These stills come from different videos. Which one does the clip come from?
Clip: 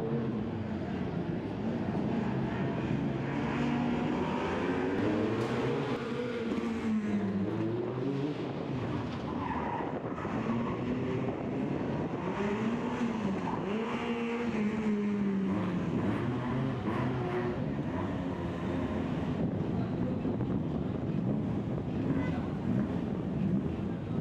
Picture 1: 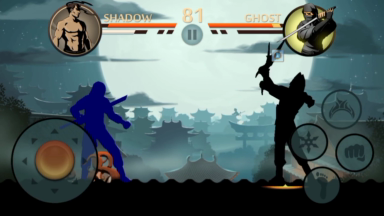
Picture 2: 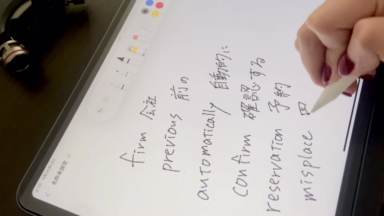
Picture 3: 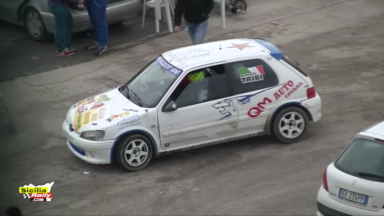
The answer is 3